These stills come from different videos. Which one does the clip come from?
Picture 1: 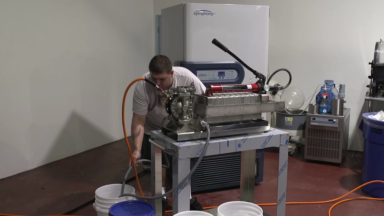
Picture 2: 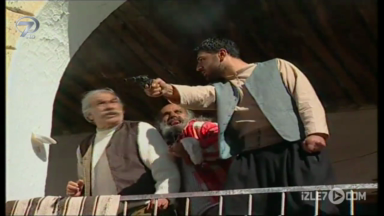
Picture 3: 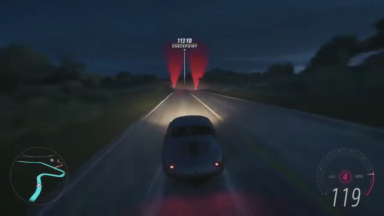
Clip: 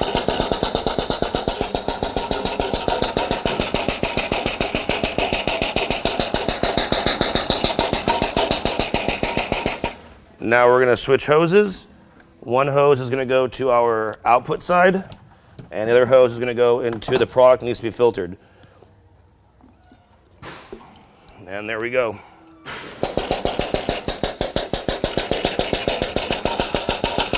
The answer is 1